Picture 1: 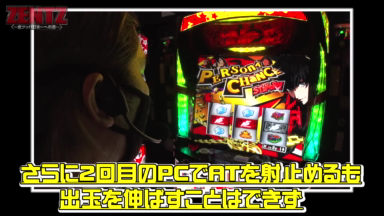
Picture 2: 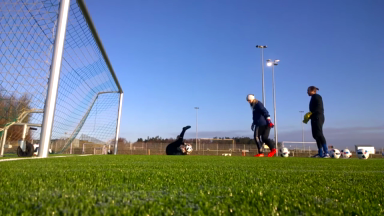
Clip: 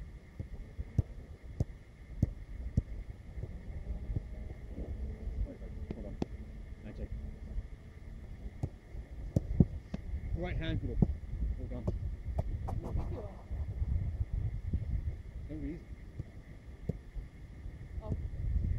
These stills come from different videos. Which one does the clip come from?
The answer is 2